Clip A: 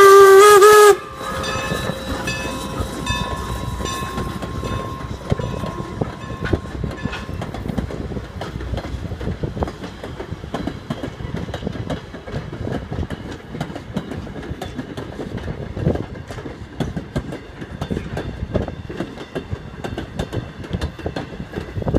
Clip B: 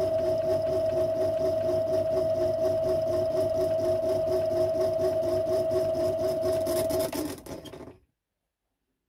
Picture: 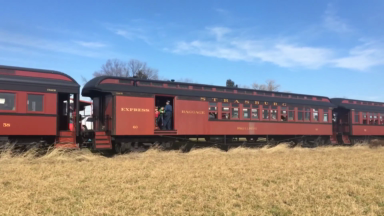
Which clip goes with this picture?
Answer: A